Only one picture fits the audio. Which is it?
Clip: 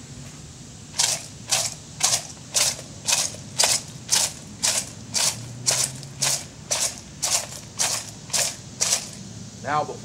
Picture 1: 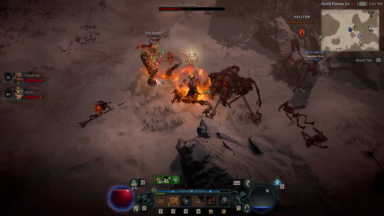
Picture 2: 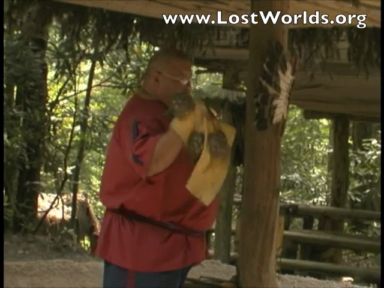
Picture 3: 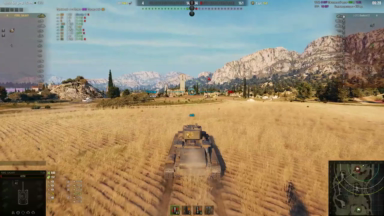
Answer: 2